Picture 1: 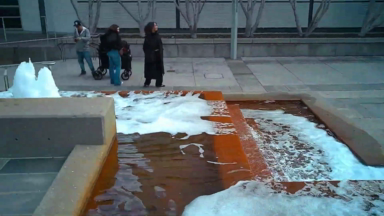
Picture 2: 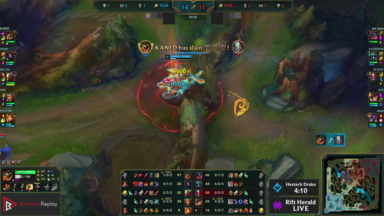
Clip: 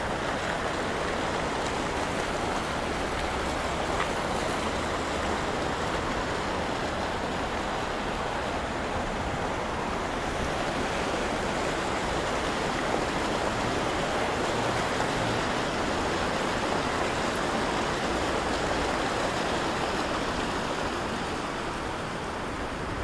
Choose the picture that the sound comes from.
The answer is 1